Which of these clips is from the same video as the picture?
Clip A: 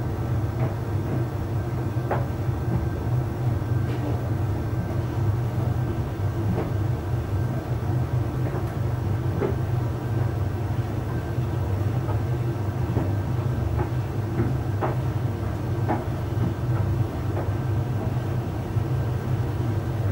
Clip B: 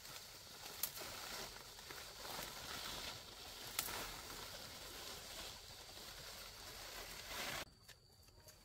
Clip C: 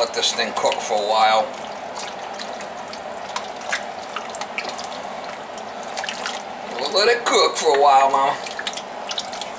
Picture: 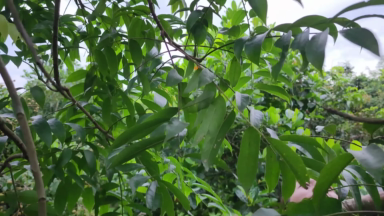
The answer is B